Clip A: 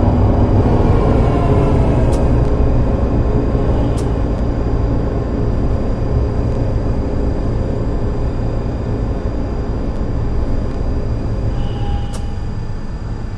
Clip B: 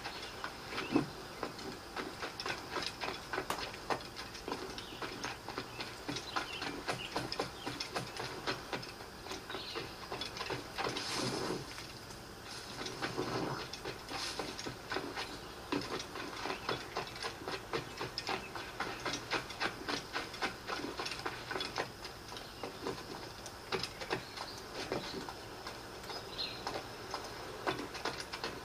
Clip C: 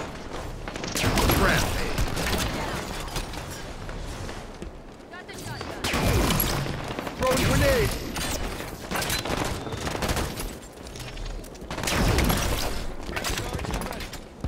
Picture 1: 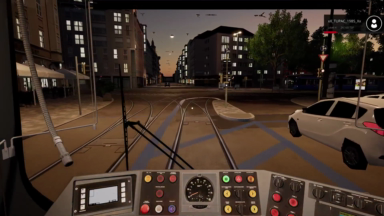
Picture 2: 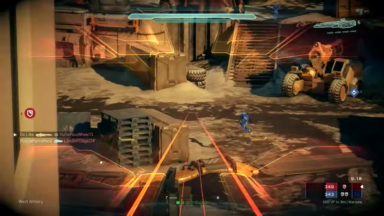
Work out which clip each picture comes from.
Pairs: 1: A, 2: C